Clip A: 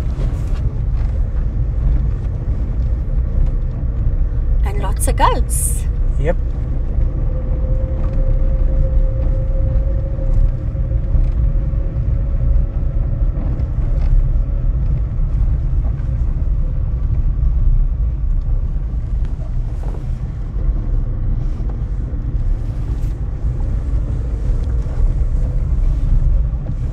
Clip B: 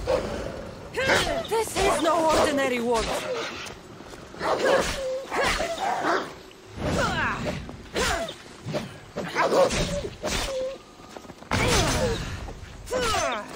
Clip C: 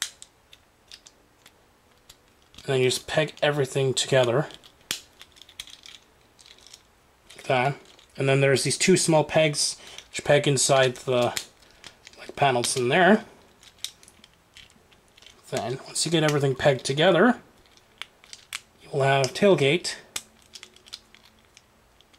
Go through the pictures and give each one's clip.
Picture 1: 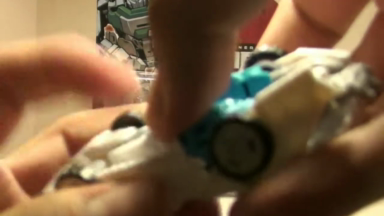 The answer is C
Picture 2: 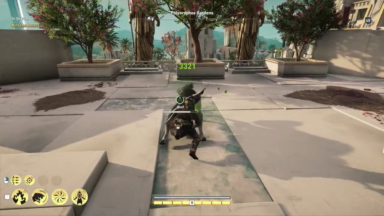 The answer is B